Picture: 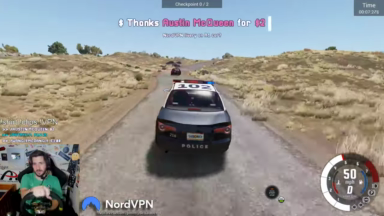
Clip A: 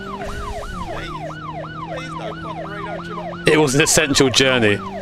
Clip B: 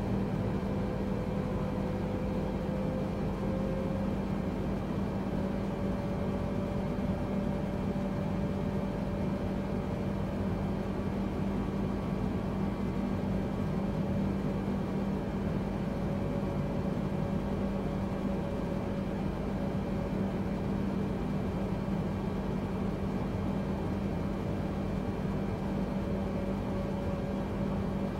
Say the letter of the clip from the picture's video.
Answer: A